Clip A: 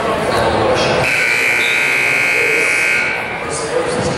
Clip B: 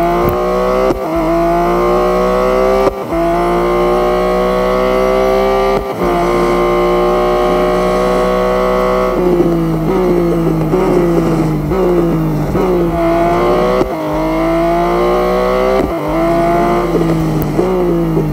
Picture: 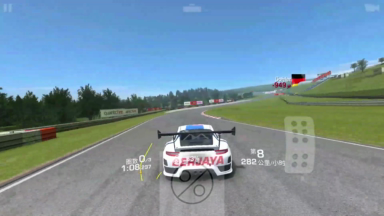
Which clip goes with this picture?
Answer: B